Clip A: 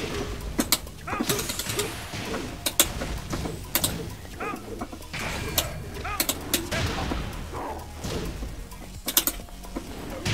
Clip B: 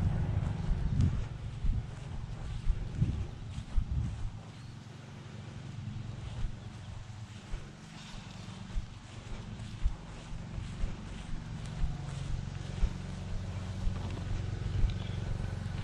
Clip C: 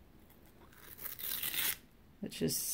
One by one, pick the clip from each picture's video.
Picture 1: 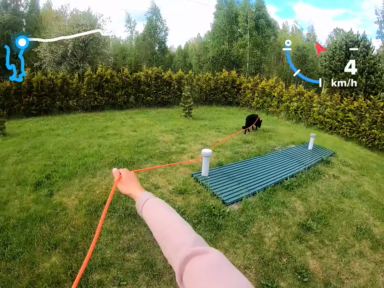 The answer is B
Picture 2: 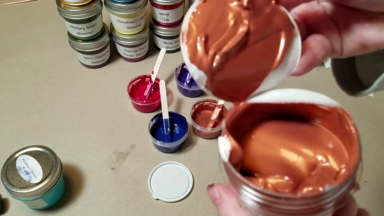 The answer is C